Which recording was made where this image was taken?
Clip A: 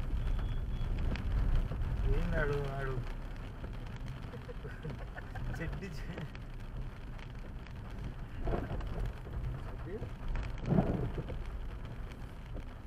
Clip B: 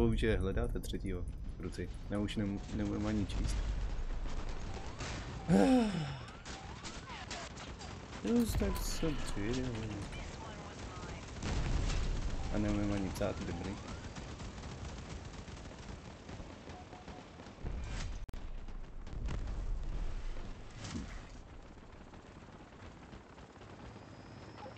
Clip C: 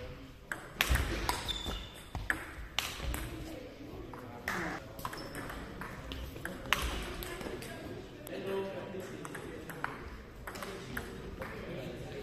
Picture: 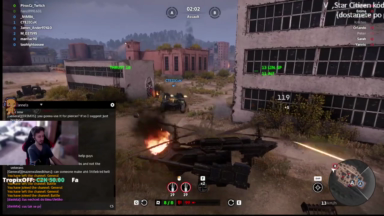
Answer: B